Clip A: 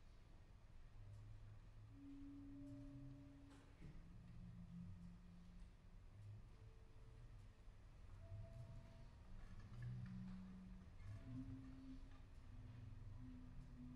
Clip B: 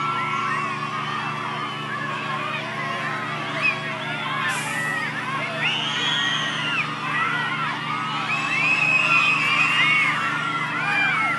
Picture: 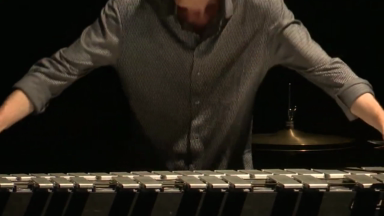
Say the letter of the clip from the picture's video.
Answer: A